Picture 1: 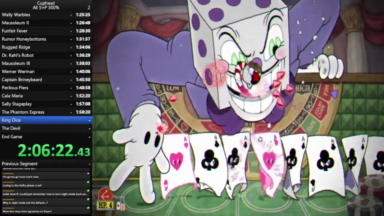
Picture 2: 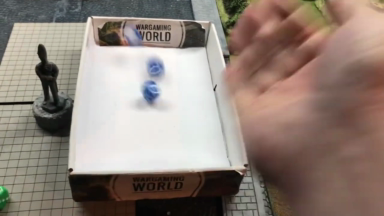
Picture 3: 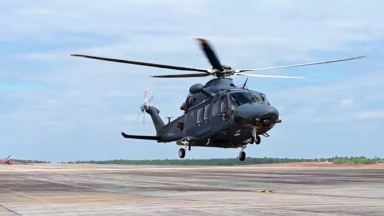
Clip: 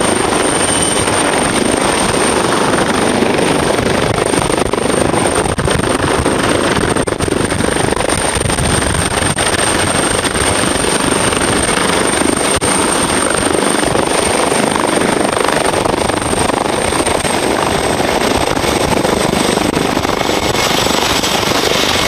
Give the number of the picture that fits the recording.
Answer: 3